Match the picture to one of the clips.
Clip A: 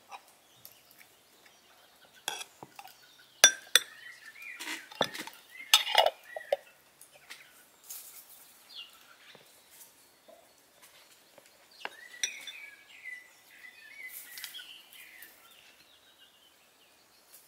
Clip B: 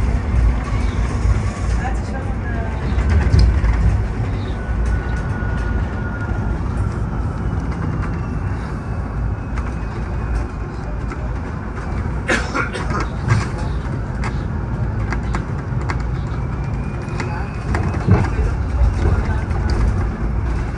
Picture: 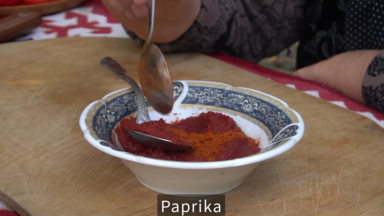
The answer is A